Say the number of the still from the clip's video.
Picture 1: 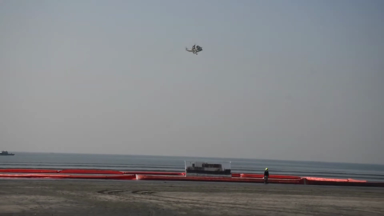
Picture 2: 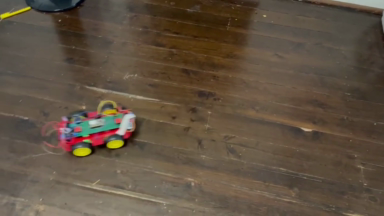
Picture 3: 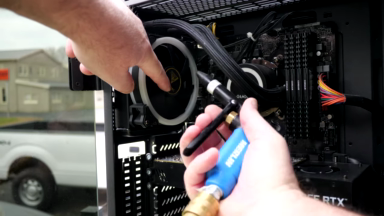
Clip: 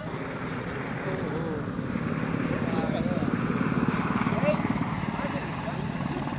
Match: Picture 1